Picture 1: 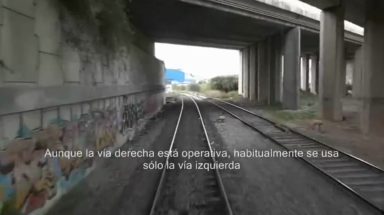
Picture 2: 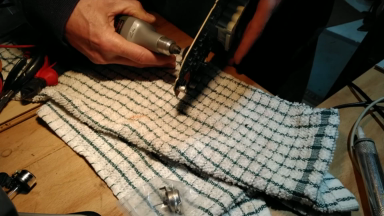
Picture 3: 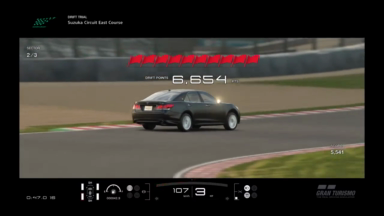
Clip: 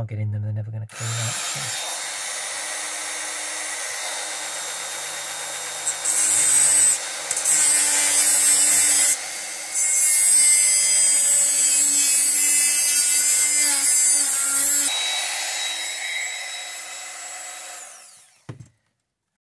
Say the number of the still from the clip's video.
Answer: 2